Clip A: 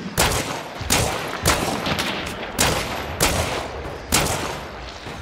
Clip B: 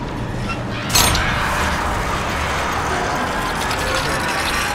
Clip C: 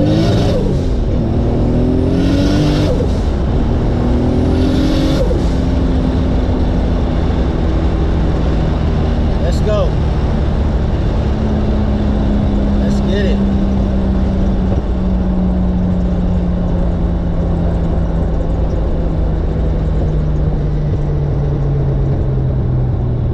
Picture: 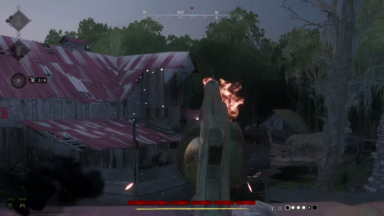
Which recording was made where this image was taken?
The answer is A